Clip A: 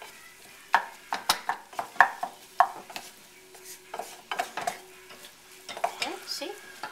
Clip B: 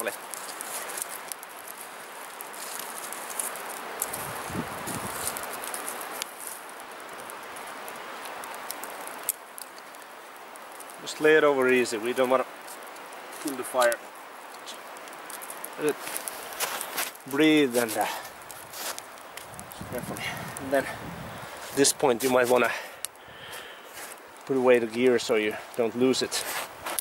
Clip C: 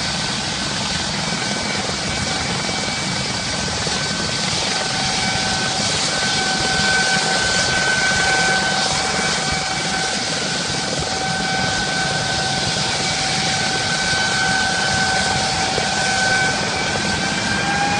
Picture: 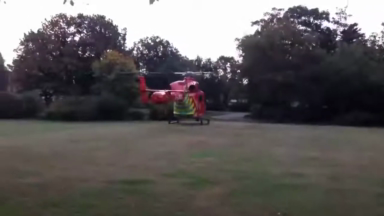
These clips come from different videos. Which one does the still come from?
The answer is C